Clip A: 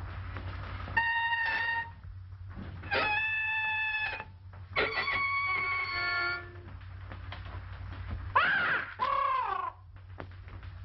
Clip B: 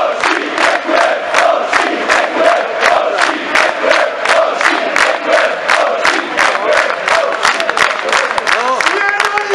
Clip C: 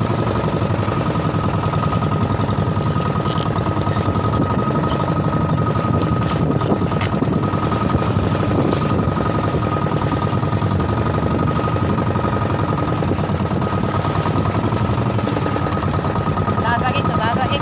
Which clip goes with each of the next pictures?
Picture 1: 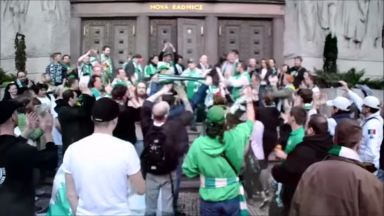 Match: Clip B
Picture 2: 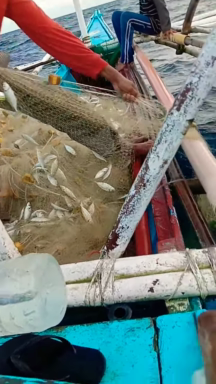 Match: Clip C